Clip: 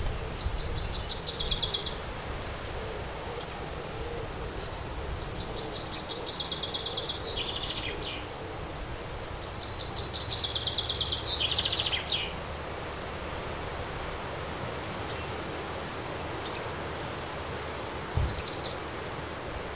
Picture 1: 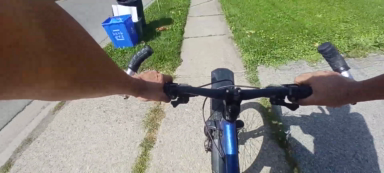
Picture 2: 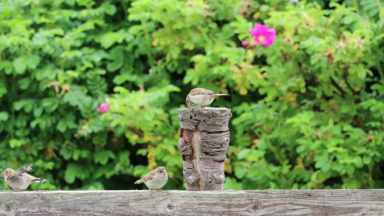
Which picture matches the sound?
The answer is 2